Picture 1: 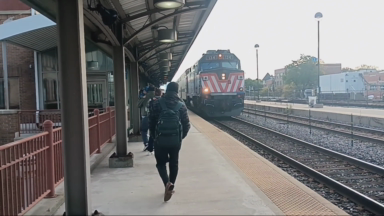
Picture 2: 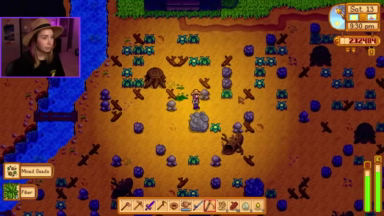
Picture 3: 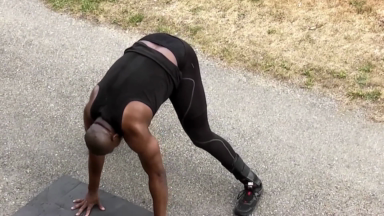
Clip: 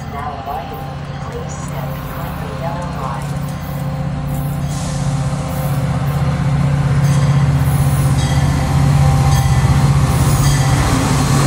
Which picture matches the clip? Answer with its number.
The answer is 1